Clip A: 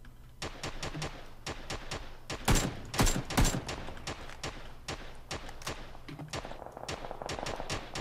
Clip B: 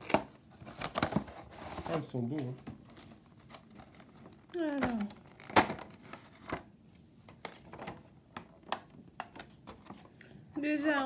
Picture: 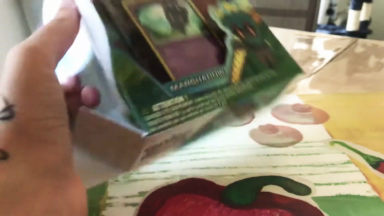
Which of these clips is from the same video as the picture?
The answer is B